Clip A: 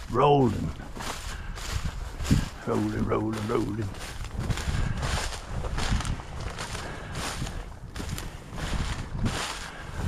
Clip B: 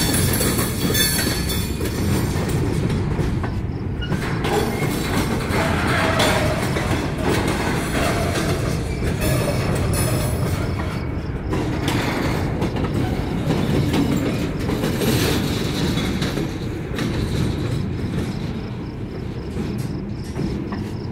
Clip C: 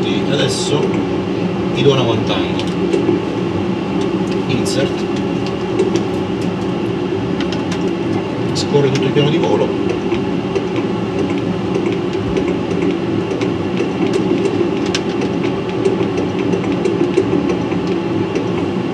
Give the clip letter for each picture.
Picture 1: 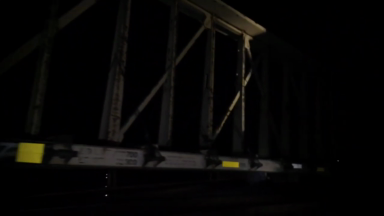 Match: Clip B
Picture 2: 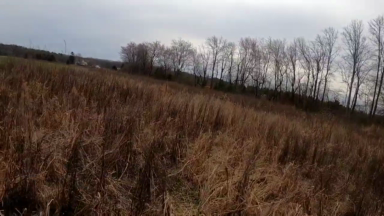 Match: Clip A